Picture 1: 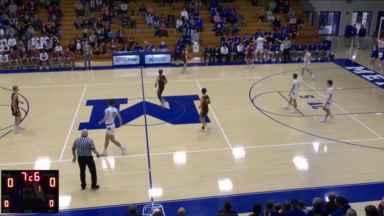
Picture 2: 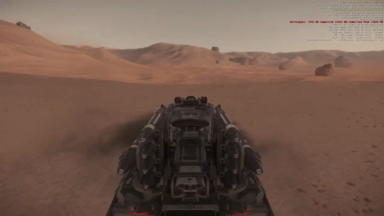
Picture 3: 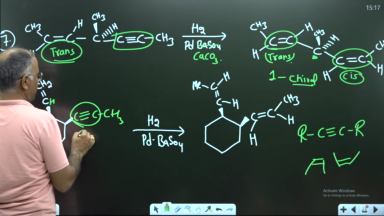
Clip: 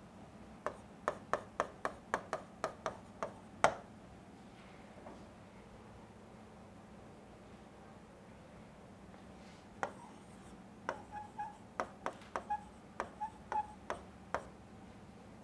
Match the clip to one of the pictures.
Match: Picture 3